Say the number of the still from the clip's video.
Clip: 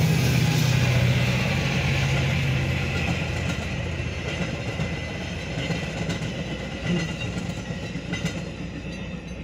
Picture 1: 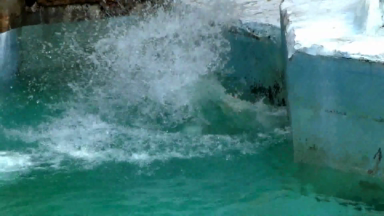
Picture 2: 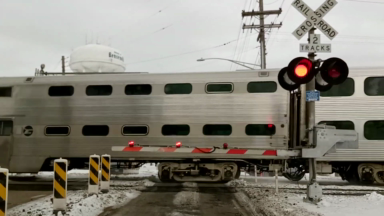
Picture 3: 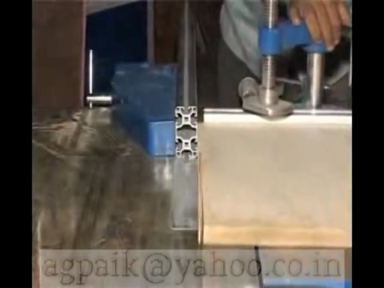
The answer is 2